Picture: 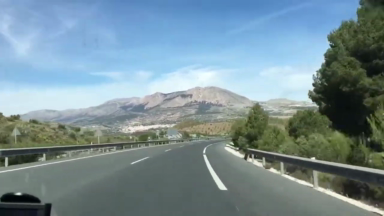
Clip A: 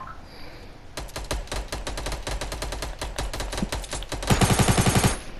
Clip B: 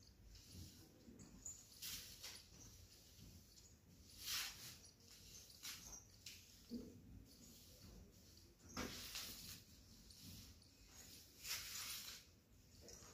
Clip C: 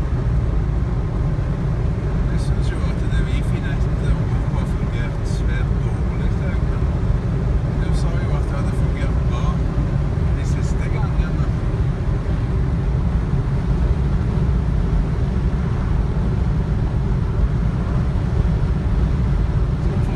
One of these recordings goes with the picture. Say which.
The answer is C